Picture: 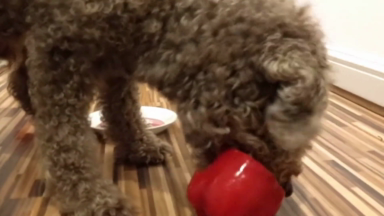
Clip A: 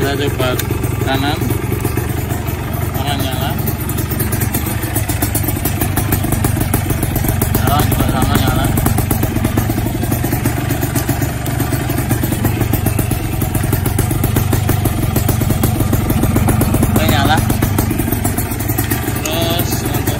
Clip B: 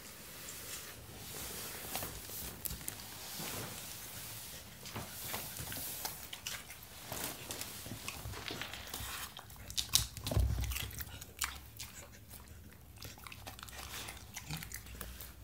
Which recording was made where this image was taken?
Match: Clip B